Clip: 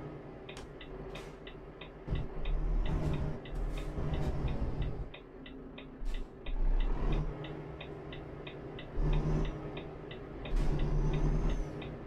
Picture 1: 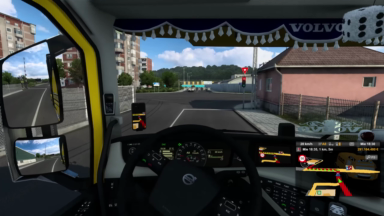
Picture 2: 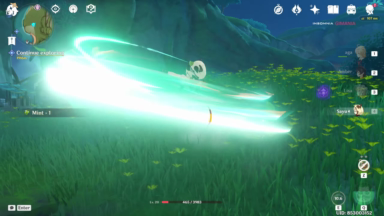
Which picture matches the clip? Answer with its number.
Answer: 1